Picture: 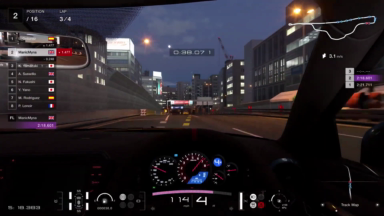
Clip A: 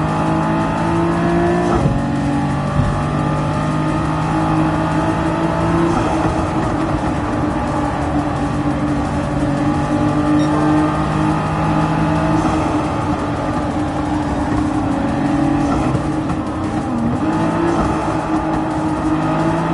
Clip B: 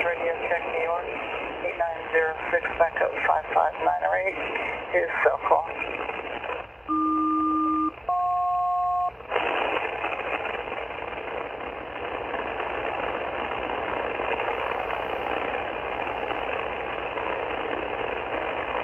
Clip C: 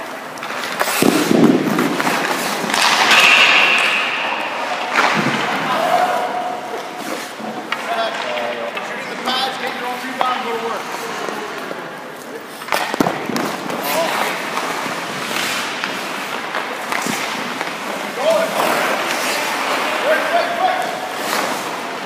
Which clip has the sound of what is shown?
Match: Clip A